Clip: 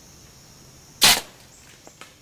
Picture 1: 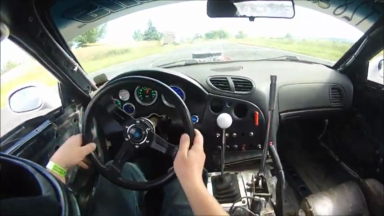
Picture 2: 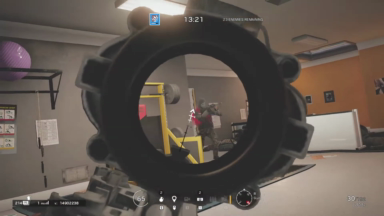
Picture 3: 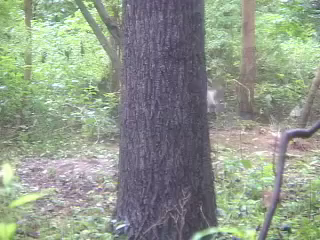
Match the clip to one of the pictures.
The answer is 3